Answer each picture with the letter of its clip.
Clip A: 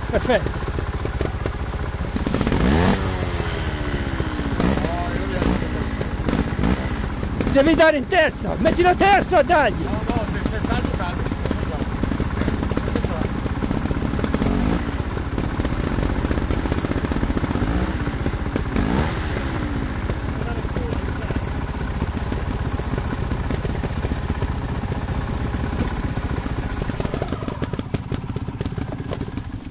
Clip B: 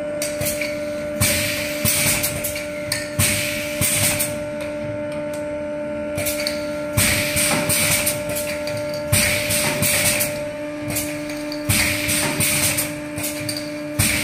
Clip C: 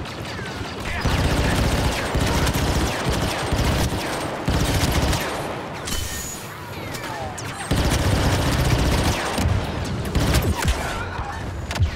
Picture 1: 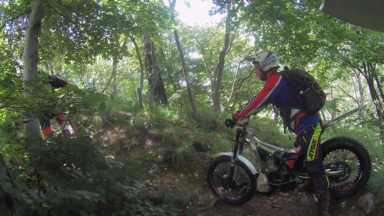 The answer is A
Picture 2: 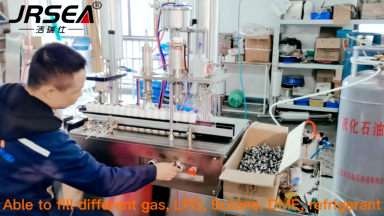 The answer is B